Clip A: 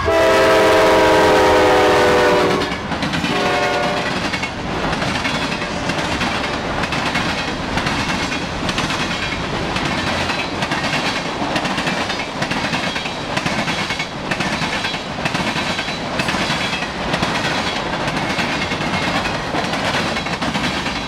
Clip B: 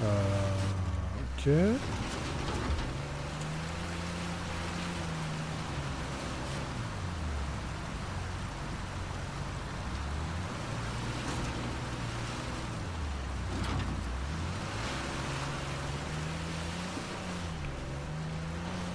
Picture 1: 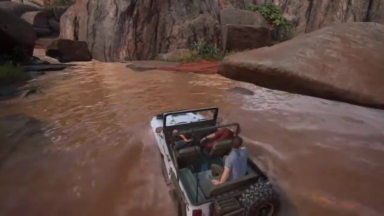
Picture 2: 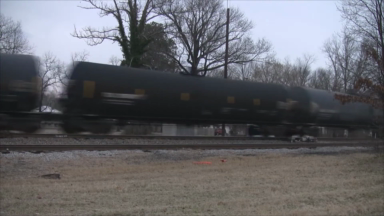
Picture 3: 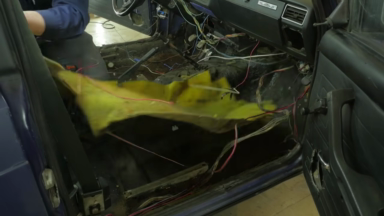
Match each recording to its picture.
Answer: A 2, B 1